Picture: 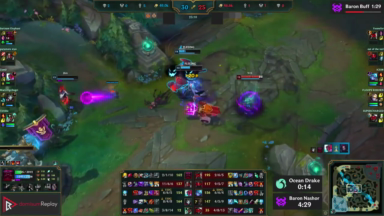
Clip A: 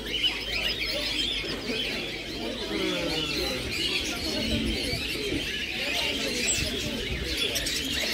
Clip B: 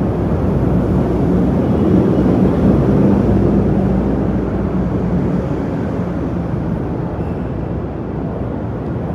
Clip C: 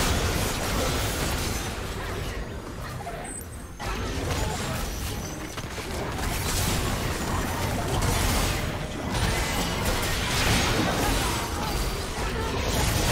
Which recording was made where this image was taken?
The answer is C